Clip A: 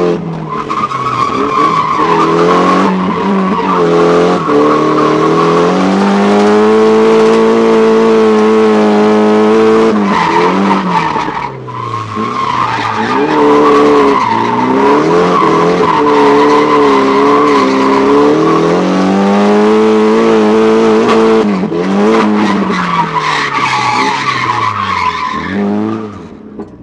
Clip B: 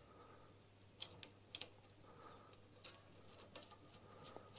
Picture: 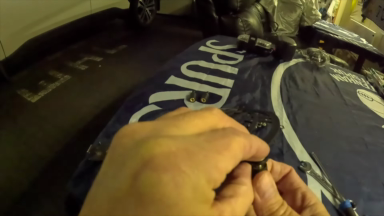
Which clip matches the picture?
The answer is B